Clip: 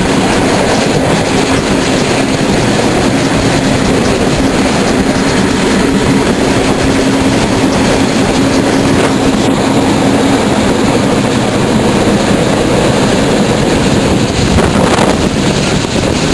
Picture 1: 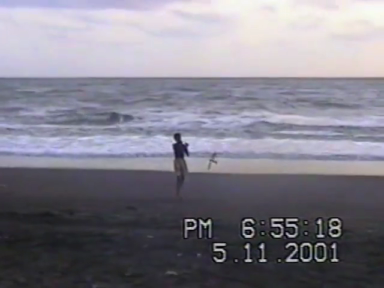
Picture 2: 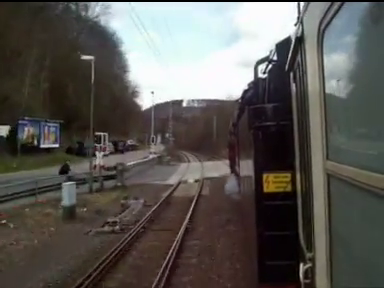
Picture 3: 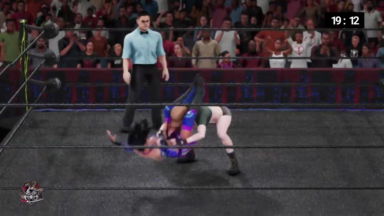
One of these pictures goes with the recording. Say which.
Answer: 2